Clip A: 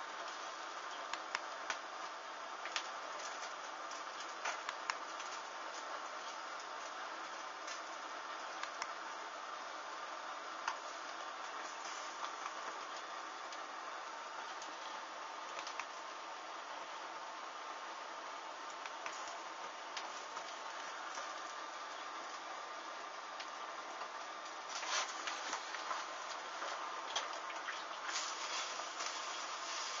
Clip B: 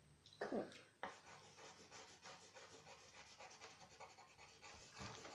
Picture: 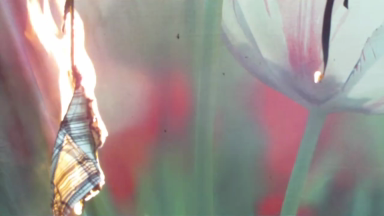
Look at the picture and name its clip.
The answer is A